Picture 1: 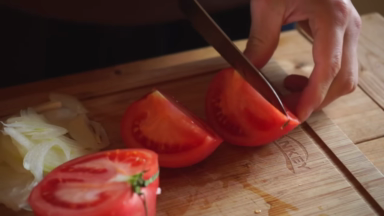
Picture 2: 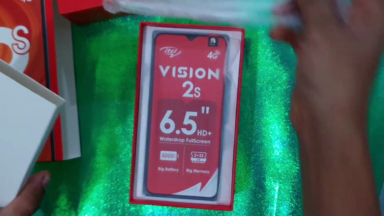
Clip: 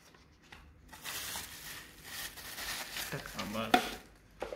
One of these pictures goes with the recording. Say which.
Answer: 2